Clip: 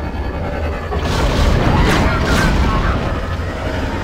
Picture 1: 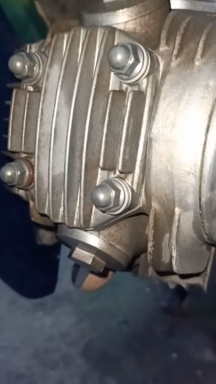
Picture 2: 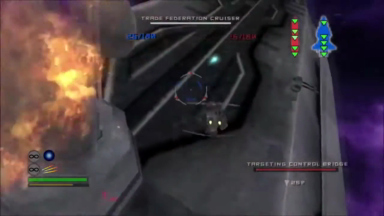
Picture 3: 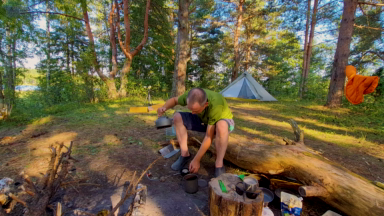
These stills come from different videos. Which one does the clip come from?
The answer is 2